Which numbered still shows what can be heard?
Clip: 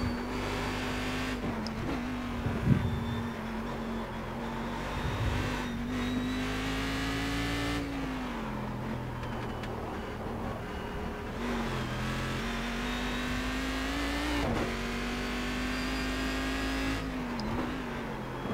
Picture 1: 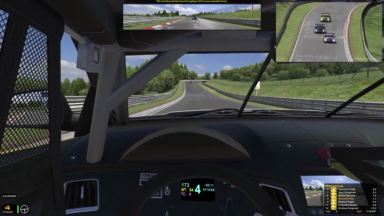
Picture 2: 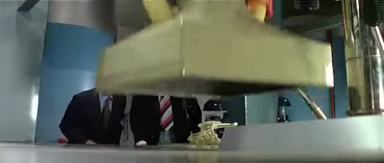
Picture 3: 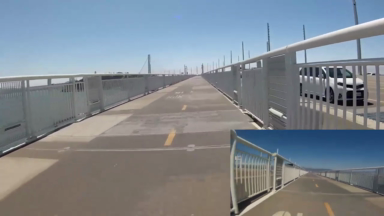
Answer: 1